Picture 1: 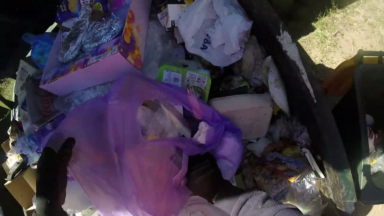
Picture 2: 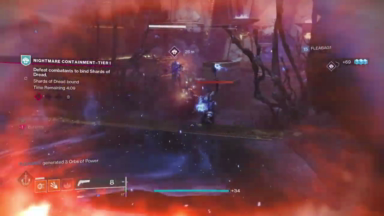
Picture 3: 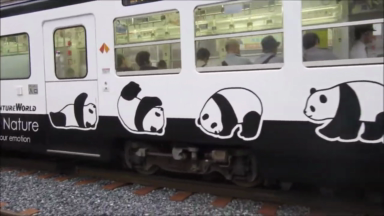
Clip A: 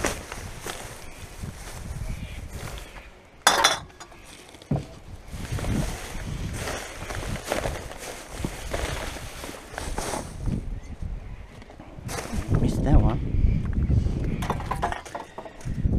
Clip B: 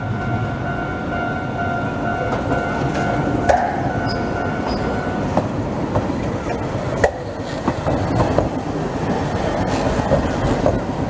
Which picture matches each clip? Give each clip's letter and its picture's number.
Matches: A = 1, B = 3